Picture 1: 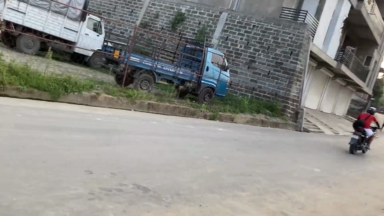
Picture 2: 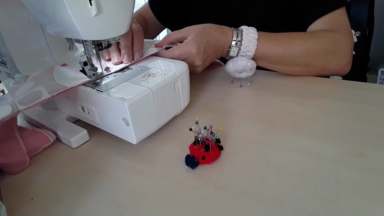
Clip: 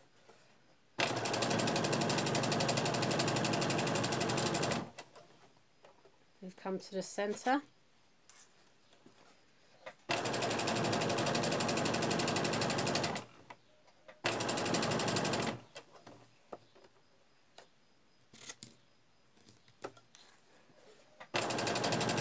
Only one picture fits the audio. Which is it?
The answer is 2